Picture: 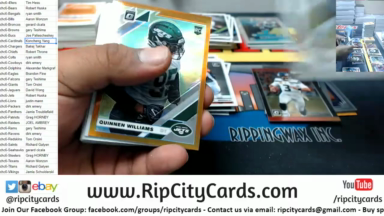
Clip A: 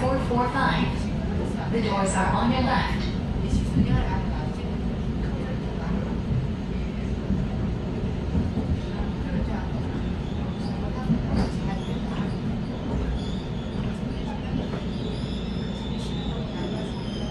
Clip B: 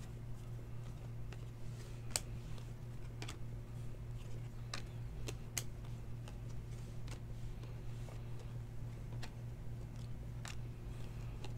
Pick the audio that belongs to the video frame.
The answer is B